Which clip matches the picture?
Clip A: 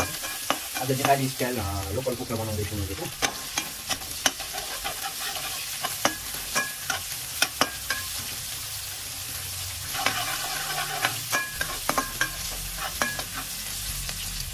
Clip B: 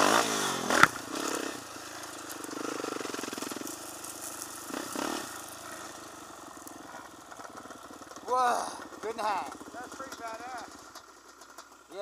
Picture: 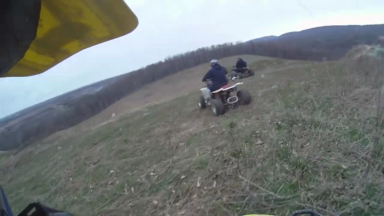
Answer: B